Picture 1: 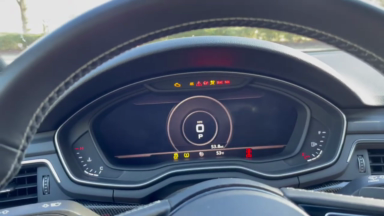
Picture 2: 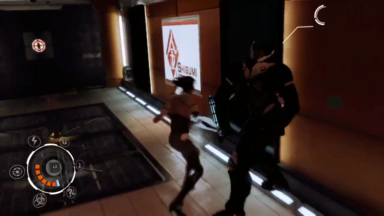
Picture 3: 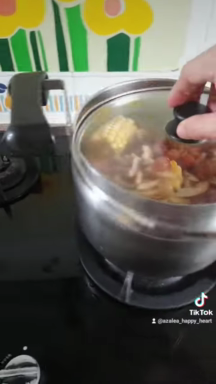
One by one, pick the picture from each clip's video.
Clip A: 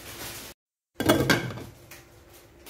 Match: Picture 3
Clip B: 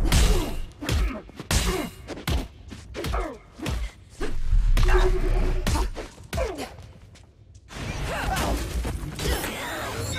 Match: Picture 2